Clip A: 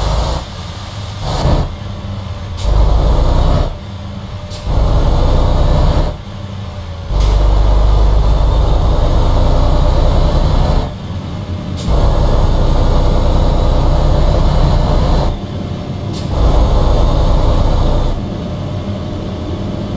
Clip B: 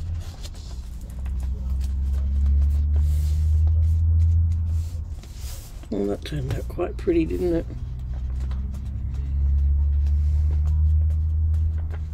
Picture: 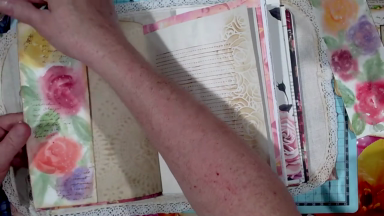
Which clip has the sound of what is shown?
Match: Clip B